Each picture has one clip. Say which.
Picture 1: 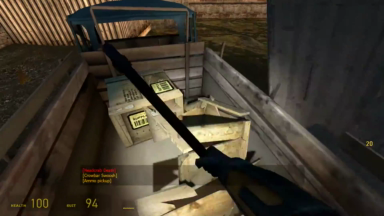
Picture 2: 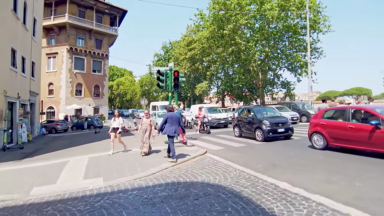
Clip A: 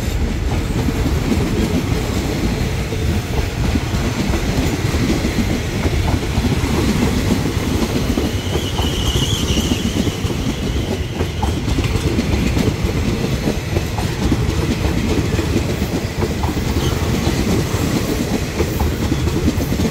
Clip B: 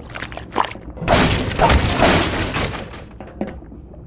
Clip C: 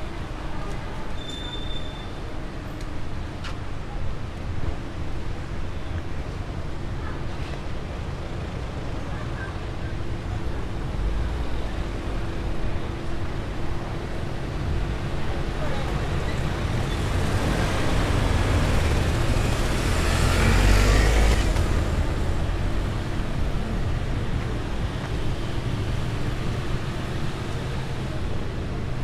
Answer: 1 B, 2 C